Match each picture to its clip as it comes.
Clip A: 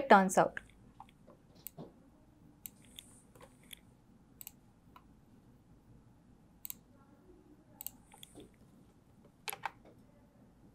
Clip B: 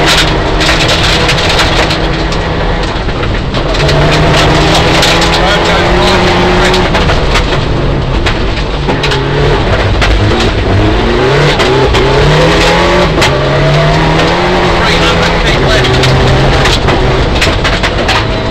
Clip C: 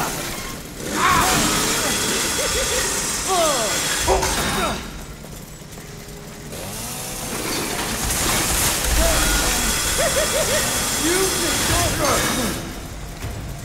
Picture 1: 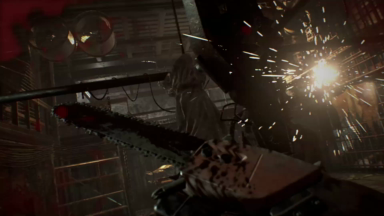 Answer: C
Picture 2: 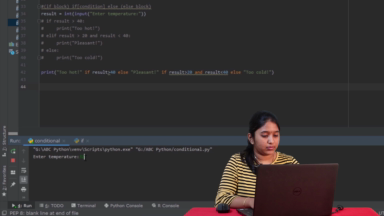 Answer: A